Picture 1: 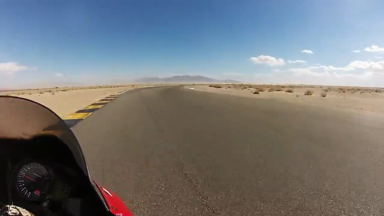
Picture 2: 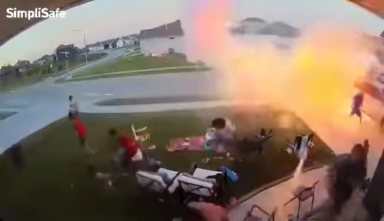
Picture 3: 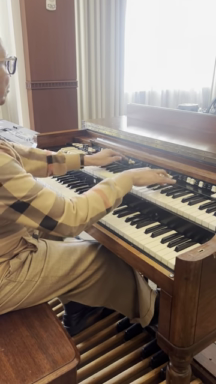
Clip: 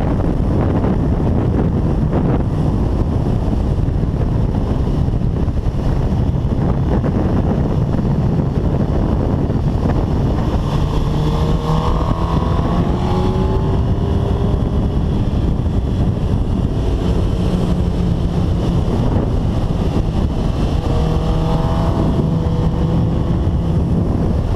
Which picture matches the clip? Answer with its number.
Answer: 1